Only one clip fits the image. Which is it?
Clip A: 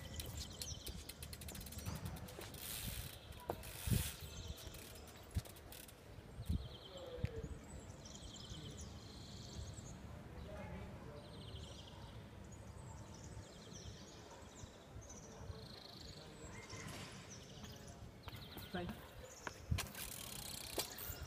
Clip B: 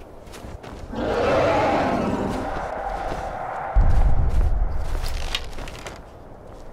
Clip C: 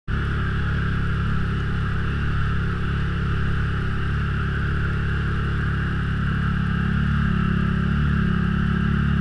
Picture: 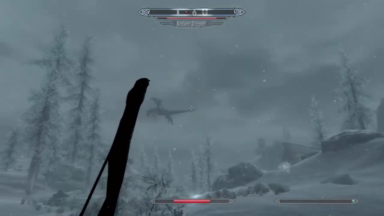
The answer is B